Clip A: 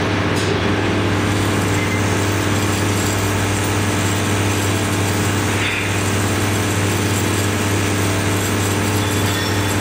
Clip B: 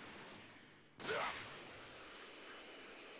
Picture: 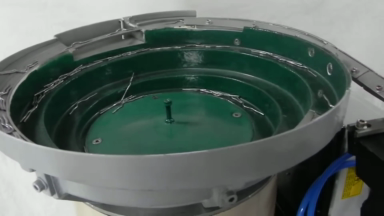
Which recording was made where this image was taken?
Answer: A